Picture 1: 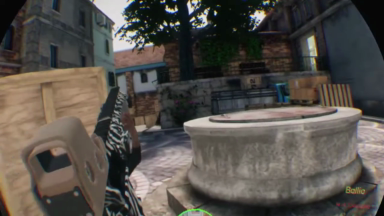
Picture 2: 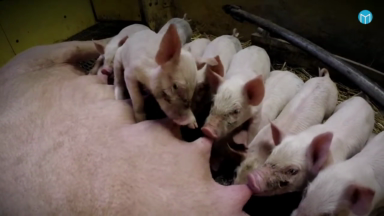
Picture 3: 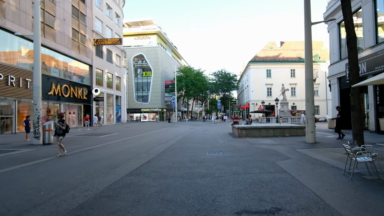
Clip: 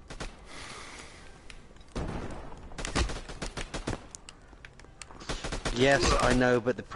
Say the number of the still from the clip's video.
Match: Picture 1